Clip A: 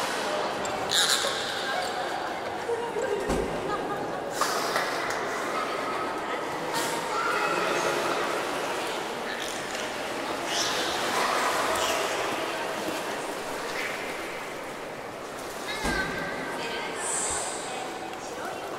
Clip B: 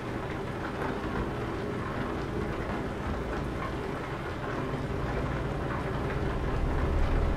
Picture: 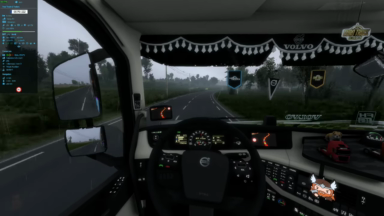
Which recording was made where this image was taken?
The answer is B